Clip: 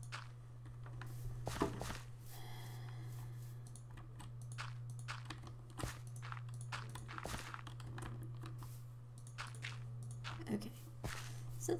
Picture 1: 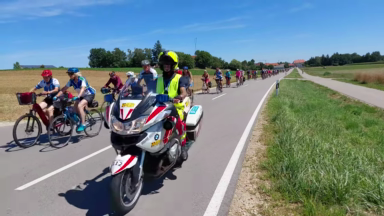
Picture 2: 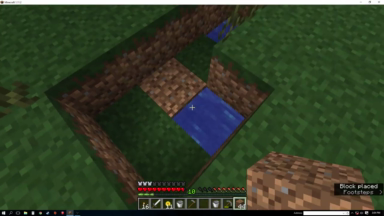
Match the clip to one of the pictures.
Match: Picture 2